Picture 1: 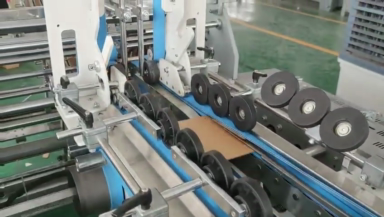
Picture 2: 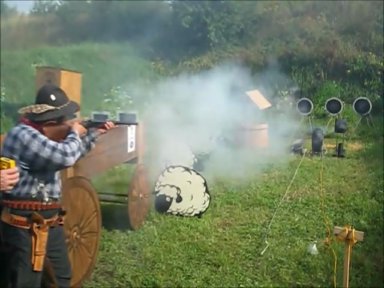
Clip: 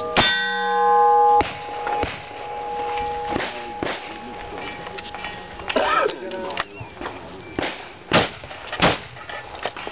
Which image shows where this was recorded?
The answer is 2